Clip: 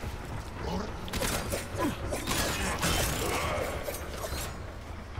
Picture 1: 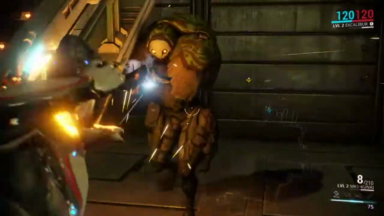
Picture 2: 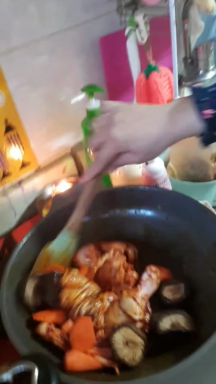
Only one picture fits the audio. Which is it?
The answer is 1